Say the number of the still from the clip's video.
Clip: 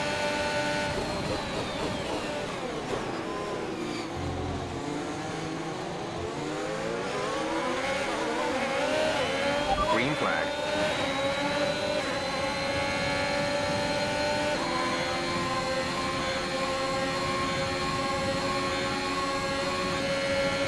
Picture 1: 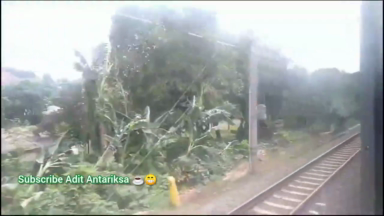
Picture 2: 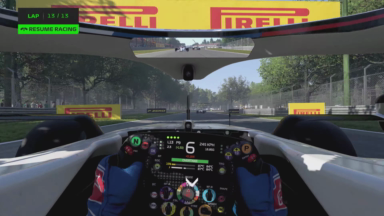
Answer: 2